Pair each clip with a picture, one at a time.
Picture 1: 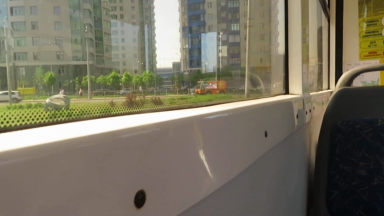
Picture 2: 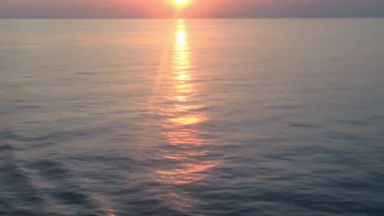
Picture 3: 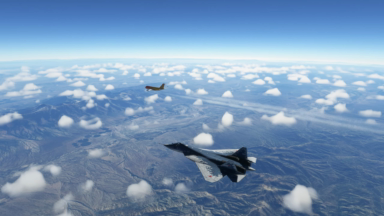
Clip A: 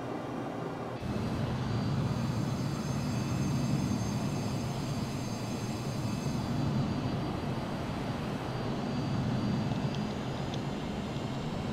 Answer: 3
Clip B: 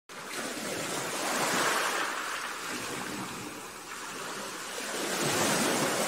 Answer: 2